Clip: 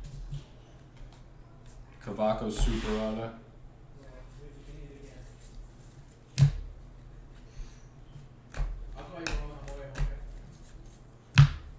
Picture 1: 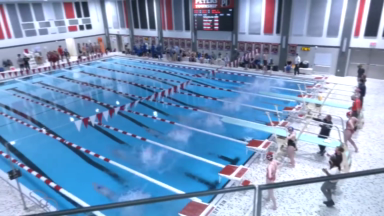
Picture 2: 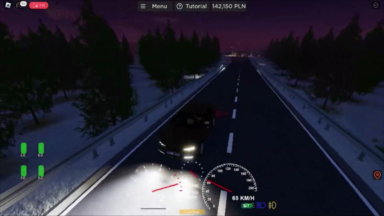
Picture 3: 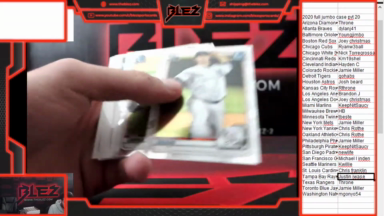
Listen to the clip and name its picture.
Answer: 3